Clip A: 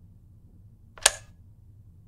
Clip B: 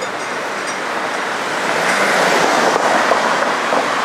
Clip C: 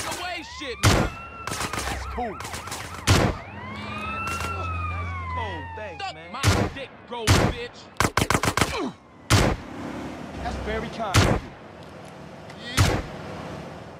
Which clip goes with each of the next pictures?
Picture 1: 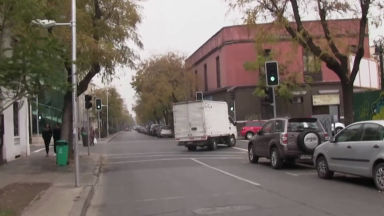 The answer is B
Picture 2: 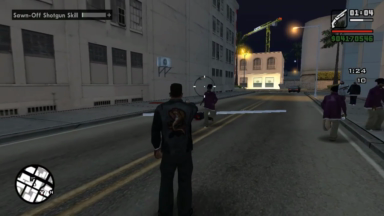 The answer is C